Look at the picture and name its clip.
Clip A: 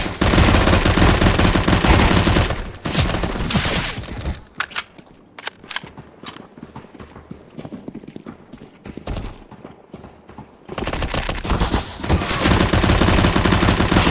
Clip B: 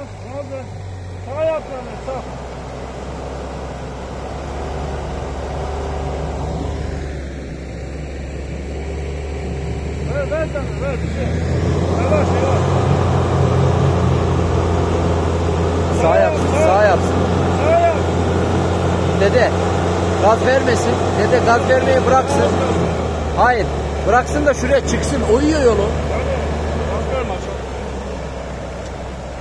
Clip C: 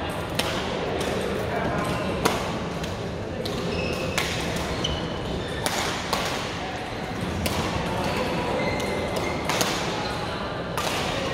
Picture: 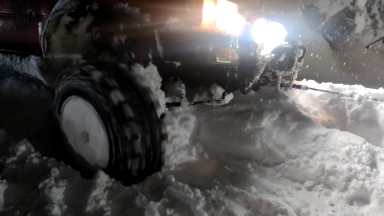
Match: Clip B